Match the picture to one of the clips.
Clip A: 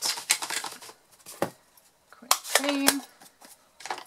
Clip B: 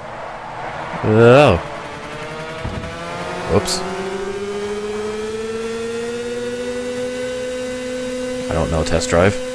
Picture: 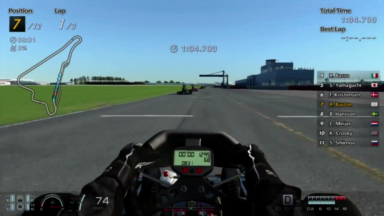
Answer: B